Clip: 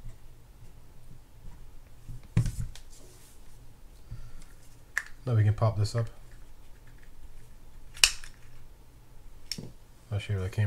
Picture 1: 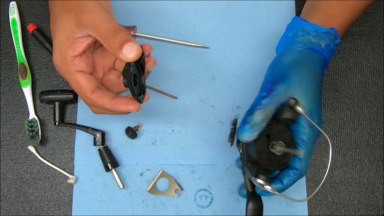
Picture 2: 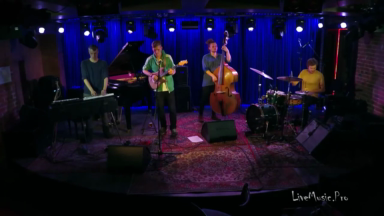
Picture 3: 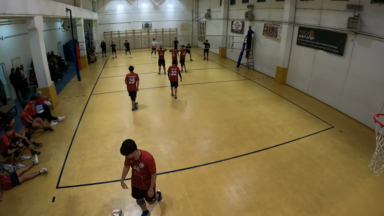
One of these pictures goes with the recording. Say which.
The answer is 1